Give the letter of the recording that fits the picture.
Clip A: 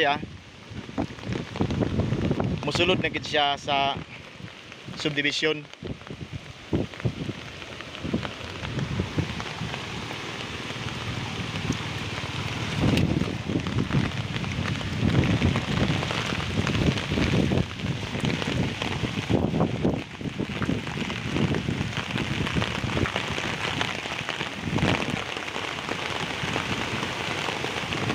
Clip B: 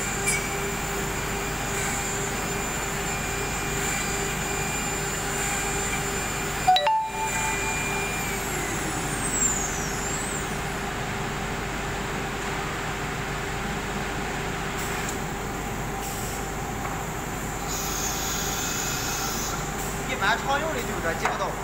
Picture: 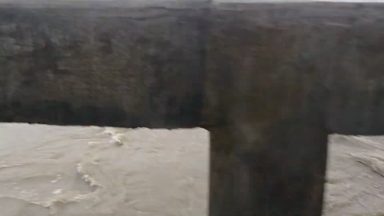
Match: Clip A